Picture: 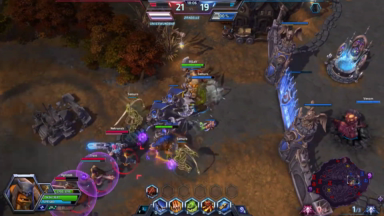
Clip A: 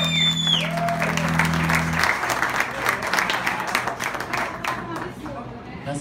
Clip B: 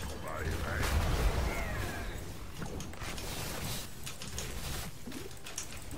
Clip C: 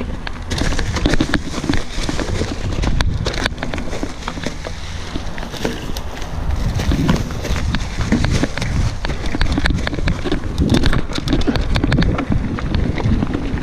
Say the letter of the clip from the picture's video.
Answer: B